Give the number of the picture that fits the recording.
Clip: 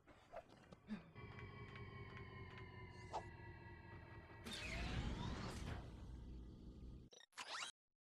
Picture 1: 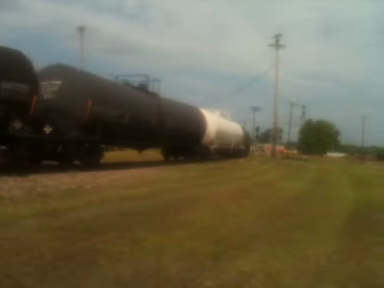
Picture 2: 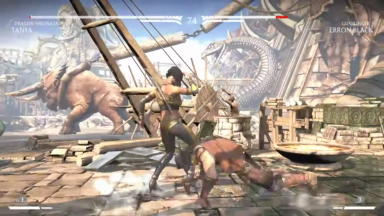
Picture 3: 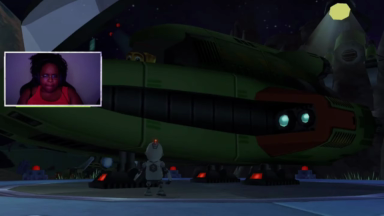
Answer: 3